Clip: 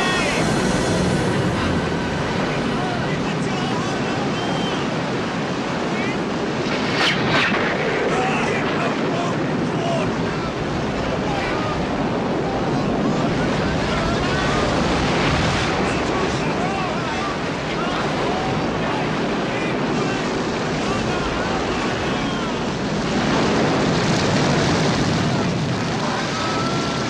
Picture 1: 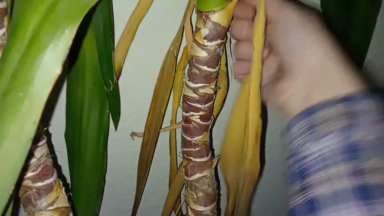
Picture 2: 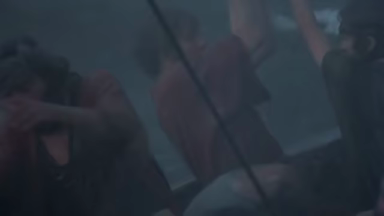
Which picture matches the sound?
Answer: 2